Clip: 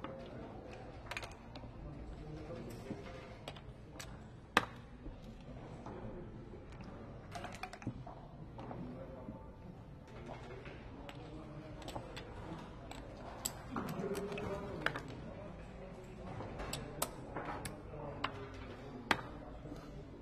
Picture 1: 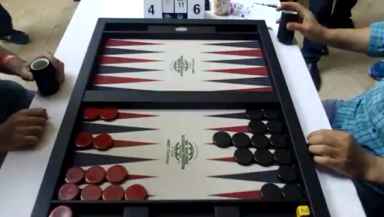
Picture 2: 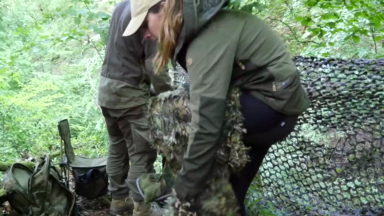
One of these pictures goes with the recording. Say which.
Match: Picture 1